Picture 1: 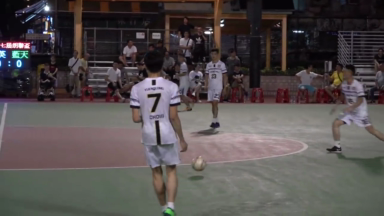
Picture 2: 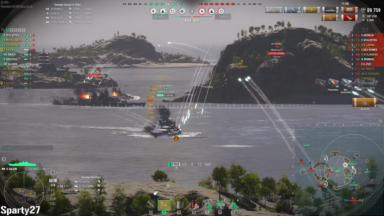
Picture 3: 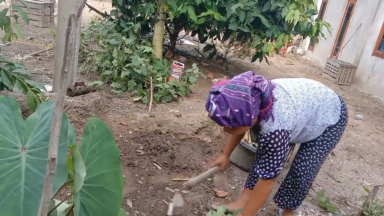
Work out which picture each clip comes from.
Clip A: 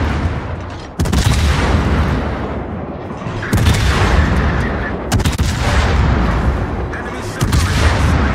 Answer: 2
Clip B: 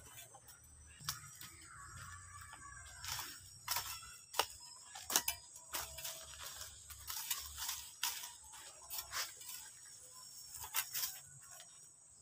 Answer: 3